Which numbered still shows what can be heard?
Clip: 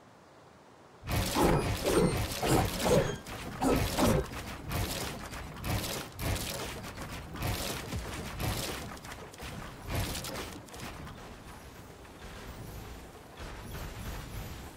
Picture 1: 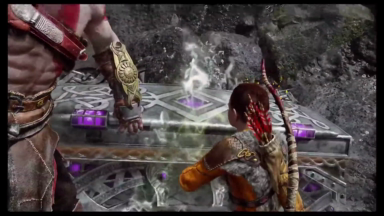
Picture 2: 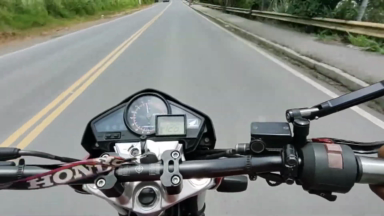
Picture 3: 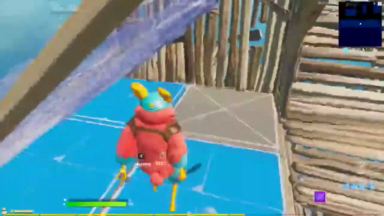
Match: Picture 3